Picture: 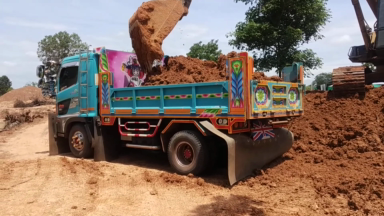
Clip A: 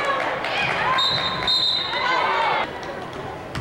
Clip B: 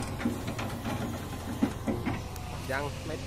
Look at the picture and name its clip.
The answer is B